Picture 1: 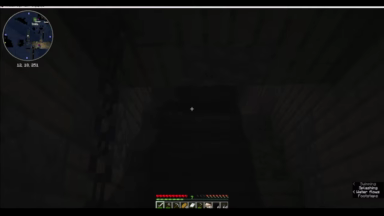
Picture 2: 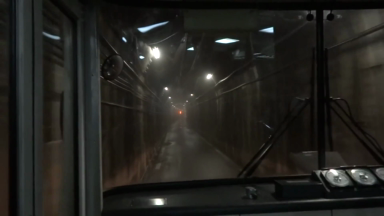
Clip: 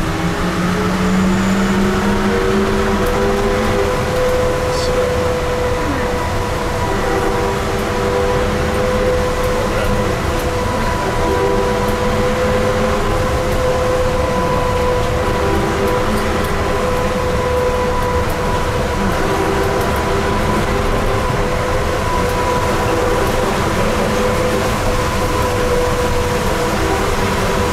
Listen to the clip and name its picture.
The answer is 2